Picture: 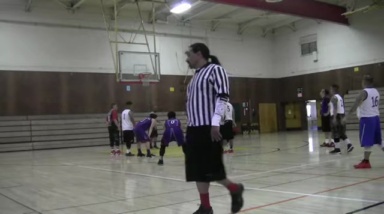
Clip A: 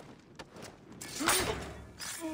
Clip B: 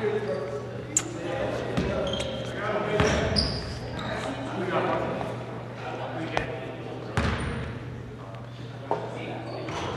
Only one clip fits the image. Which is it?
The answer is B